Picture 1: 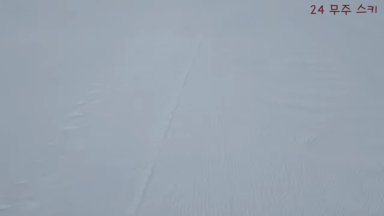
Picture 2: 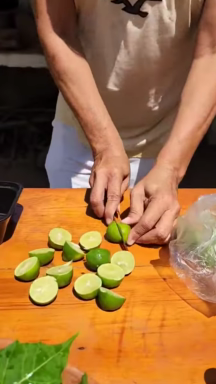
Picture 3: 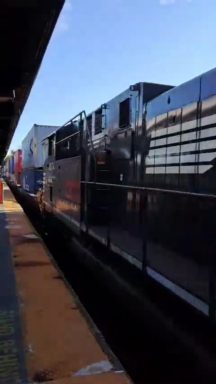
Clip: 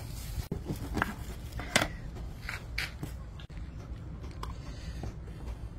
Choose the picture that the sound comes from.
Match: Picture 2